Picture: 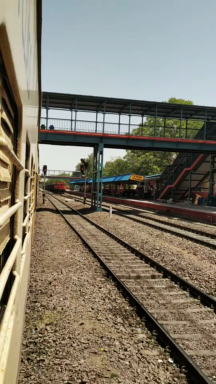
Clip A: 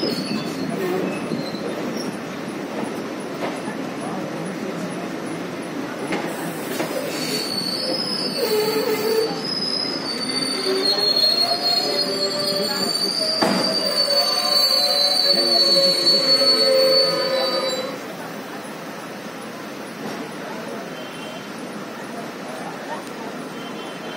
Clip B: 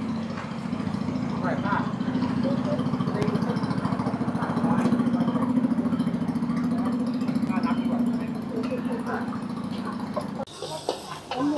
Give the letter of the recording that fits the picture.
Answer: A